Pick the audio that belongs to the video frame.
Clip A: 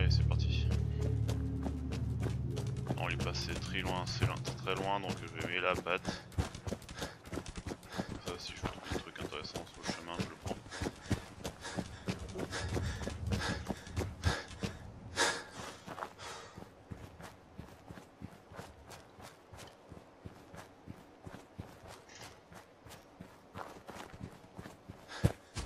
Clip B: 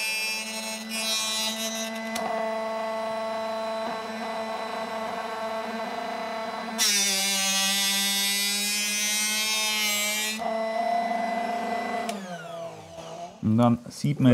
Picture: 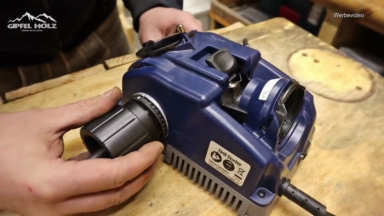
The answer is B